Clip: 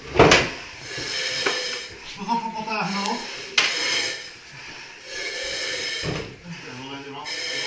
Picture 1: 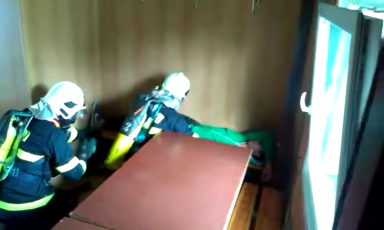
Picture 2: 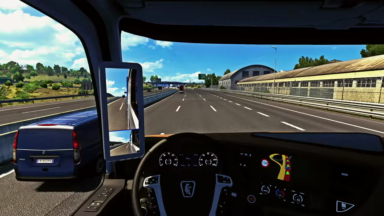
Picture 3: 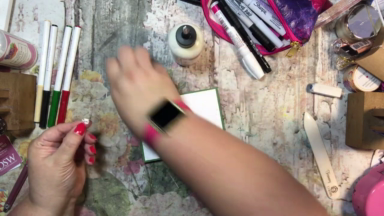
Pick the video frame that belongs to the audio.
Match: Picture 1